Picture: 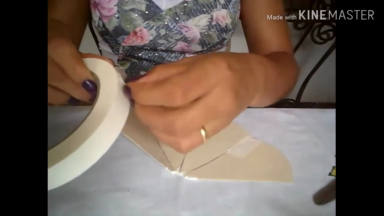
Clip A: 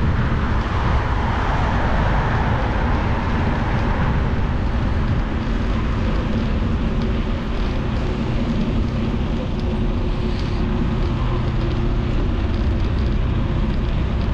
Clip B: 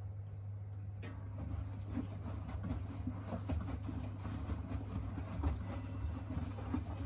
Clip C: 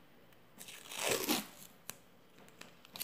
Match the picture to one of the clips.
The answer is C